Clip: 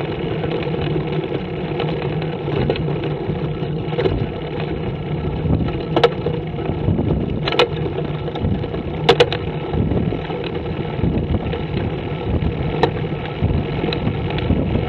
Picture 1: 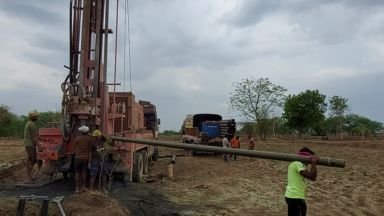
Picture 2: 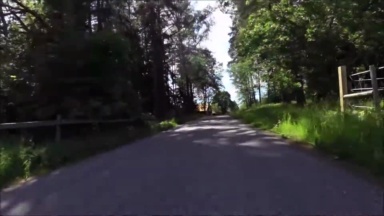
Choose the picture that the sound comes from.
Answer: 2